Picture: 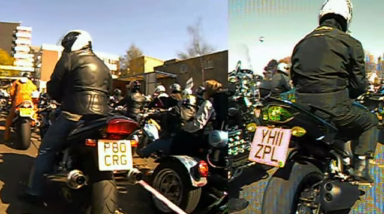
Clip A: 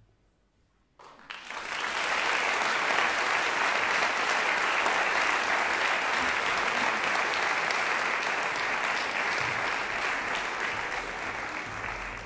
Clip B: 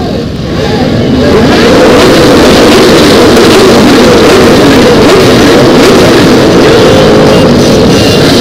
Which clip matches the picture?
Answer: B